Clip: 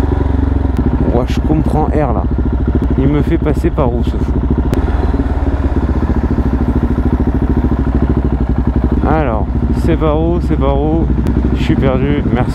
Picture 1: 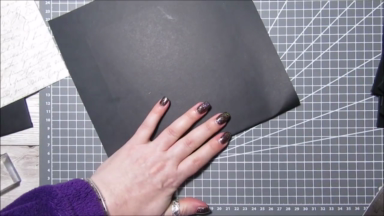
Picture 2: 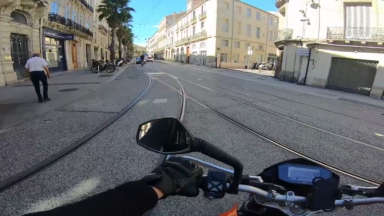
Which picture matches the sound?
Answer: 2